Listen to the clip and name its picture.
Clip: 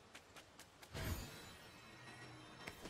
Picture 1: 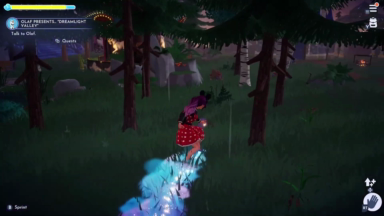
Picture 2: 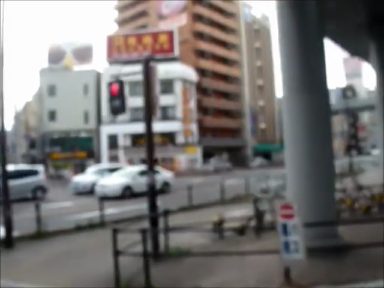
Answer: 1